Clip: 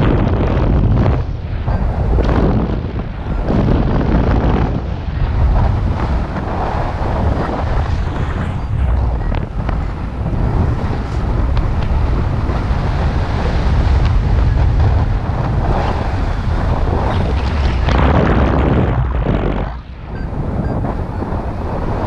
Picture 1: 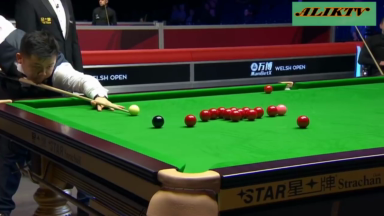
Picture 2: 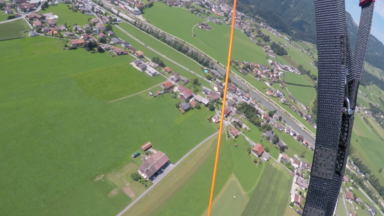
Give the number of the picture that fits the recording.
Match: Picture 2